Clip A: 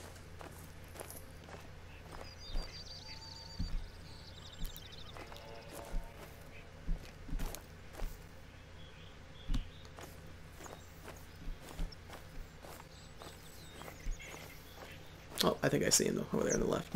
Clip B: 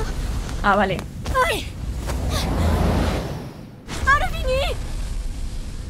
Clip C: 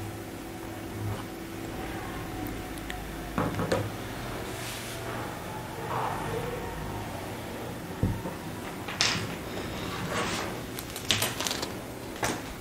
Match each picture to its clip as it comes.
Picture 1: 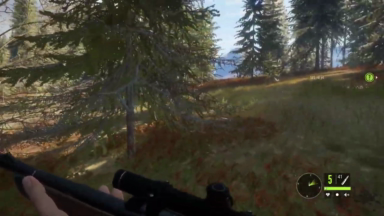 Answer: A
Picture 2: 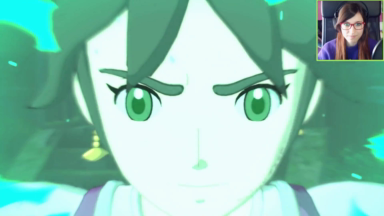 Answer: B